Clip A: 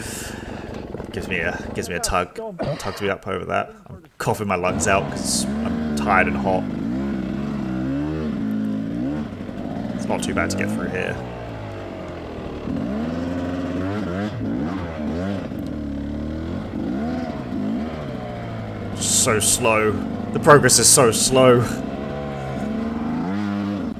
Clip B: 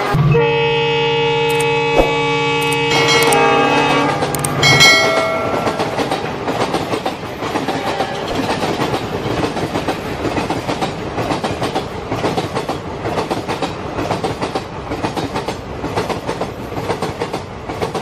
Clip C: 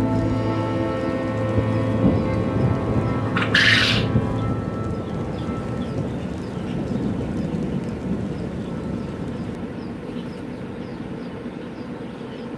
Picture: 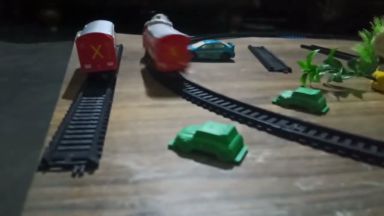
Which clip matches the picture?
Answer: B